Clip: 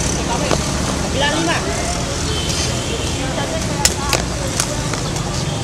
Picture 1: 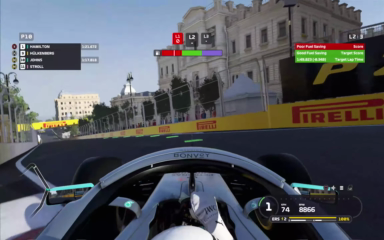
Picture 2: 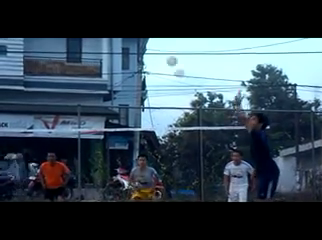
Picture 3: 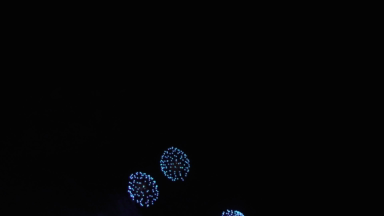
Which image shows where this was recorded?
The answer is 2